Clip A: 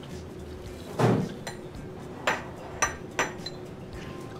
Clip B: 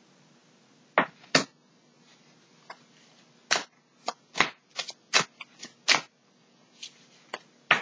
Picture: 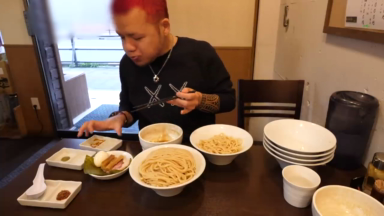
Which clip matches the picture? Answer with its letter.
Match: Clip A